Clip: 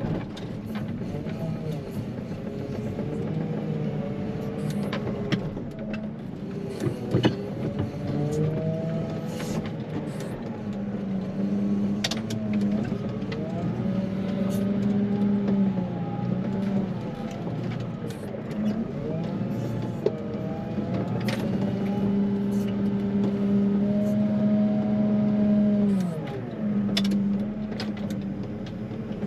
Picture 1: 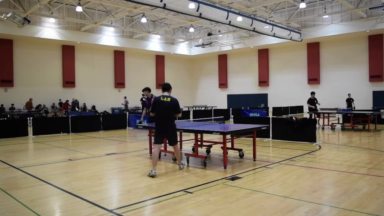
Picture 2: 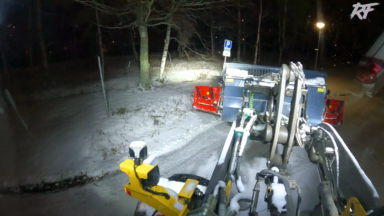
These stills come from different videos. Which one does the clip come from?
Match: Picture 2